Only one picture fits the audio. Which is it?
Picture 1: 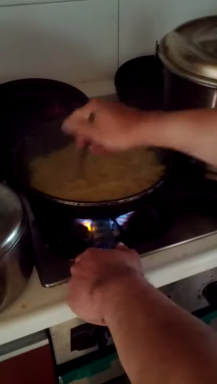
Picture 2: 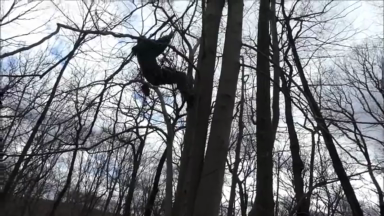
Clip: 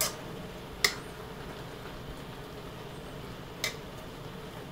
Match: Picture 1